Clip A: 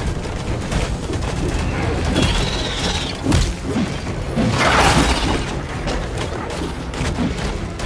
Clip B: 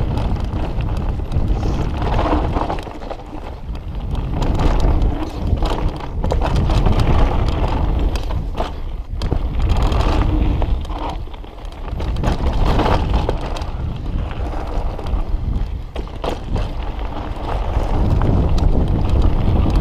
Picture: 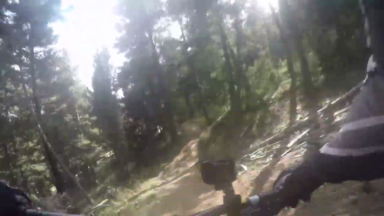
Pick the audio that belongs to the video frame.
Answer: B